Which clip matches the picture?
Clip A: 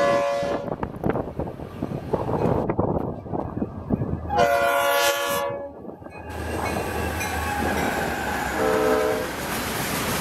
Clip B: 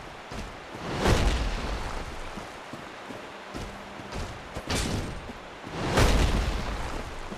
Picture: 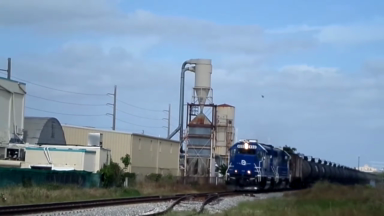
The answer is A